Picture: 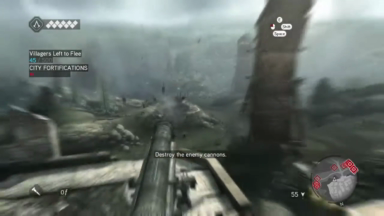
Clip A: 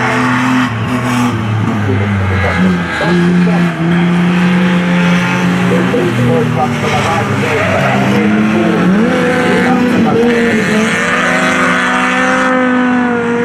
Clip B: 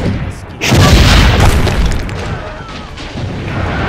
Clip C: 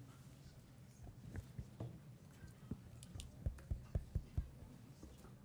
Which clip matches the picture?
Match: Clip B